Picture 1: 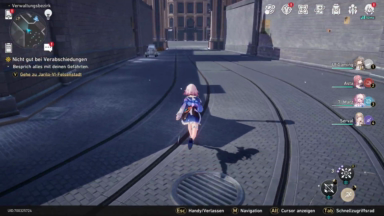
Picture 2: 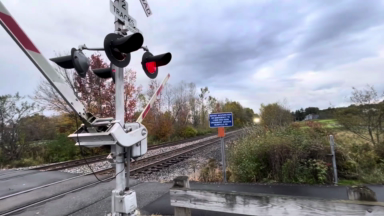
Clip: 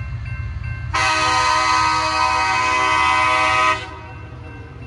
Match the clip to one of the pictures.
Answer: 2